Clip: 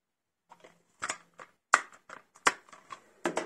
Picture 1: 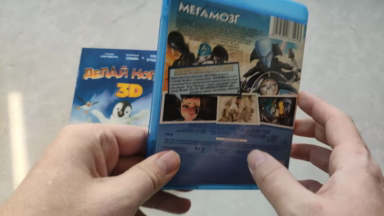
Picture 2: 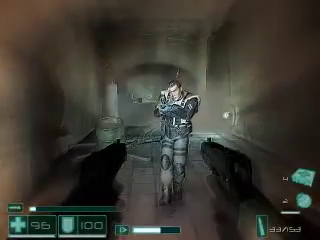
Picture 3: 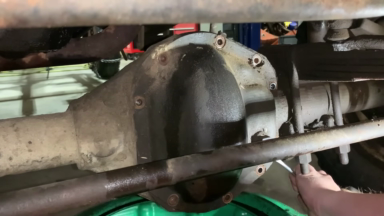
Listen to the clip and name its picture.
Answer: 1